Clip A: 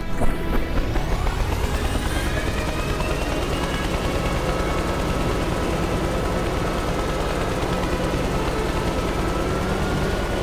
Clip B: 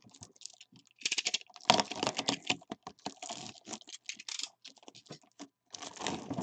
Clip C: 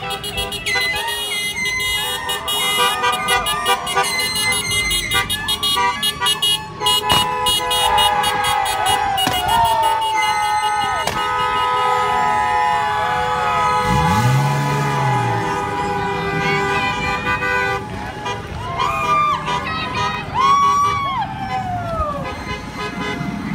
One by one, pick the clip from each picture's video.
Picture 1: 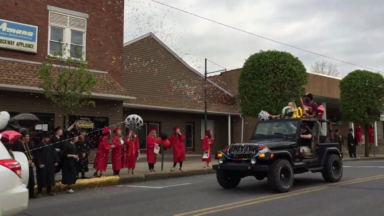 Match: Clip C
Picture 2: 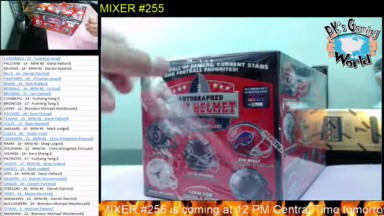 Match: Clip B